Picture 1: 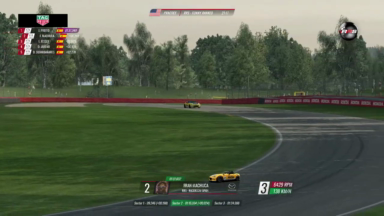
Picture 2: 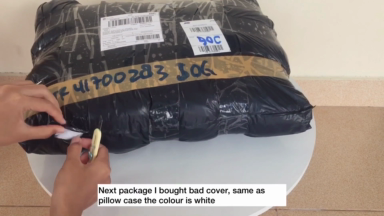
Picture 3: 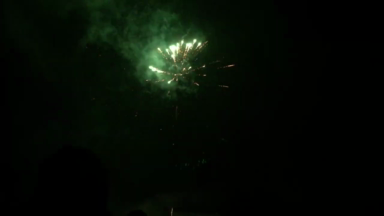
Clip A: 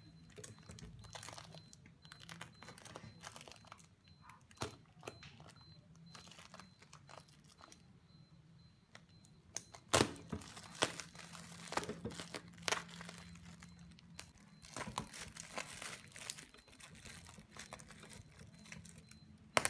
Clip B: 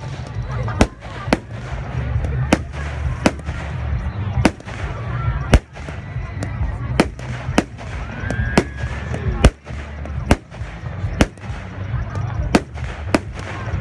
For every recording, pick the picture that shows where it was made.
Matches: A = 2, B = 3